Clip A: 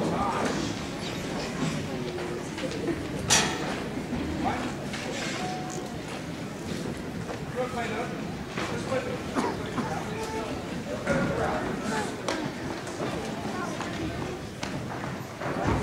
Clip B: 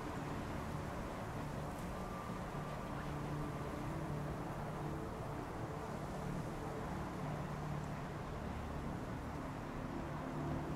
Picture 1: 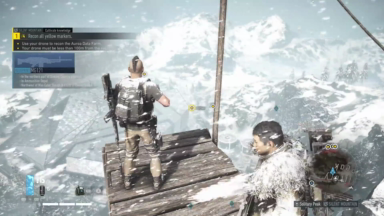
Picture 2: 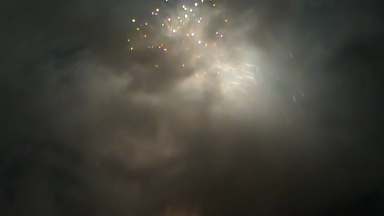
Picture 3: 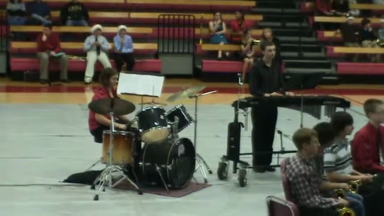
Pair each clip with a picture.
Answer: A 3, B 1